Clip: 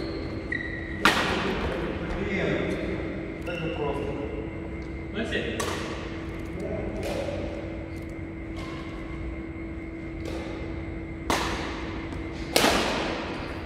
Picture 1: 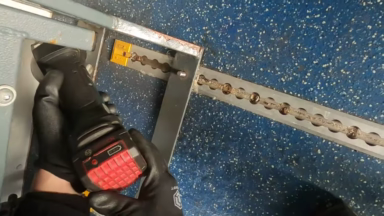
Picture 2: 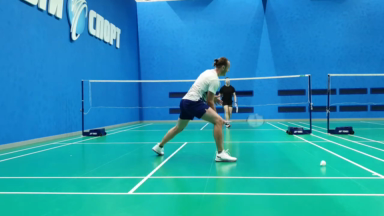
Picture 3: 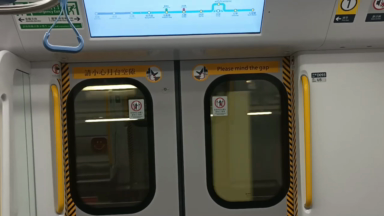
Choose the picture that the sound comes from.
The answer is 2